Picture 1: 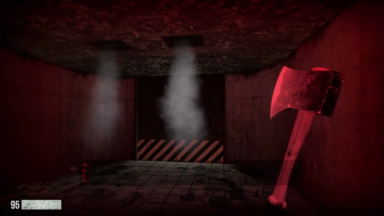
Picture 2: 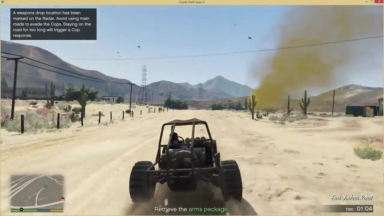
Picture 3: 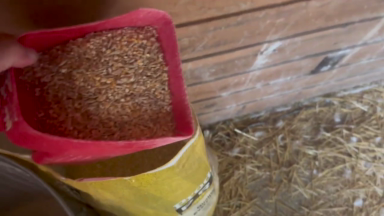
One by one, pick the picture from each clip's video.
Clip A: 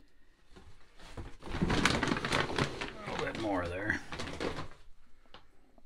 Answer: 3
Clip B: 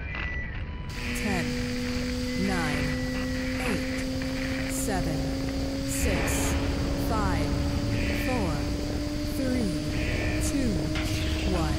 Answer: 1